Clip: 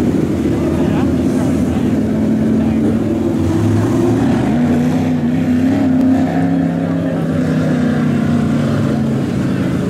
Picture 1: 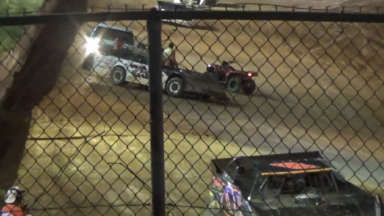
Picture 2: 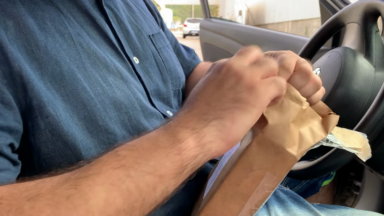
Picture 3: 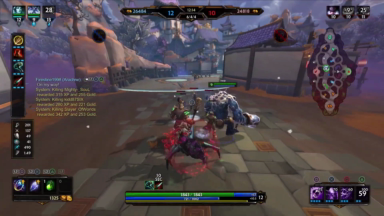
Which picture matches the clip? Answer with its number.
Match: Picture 1